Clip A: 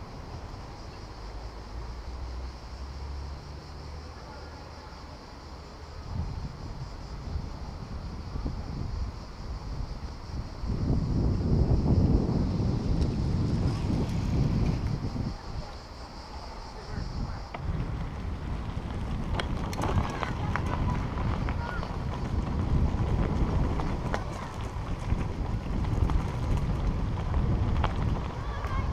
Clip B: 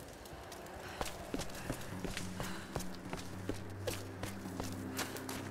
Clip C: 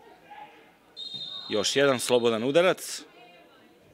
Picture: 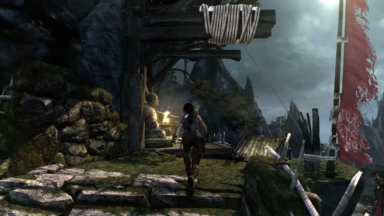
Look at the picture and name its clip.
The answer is B